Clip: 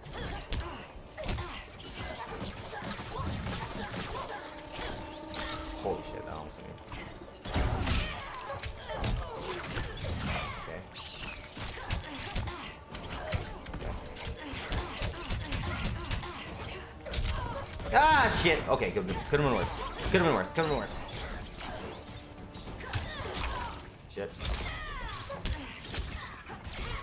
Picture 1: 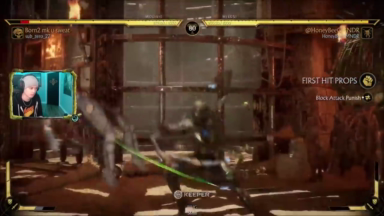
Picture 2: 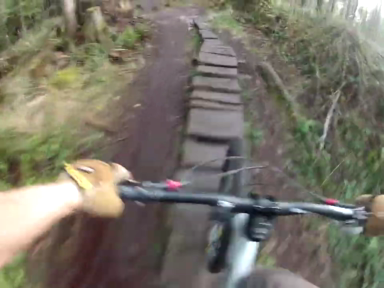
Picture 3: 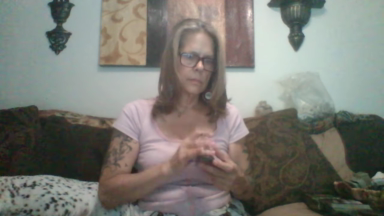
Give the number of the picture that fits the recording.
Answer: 1